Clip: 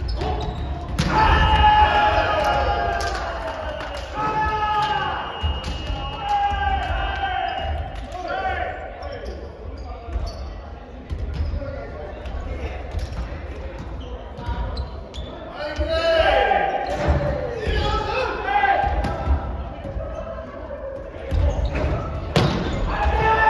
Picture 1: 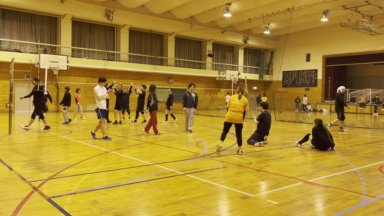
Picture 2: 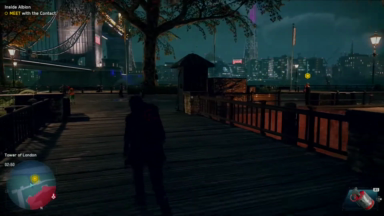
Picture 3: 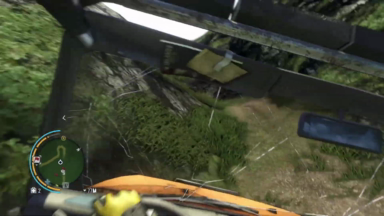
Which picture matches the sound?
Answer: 1